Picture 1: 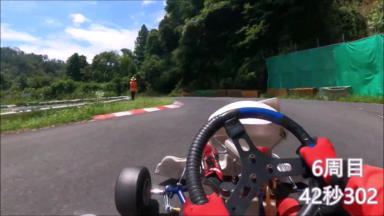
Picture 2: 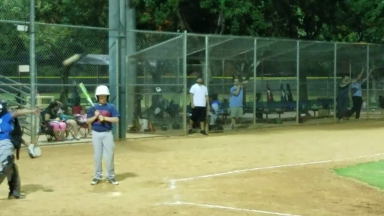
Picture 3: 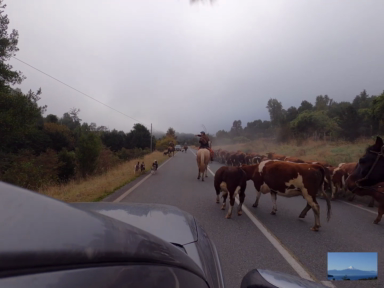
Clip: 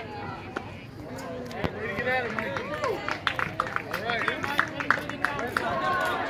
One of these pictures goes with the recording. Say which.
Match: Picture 2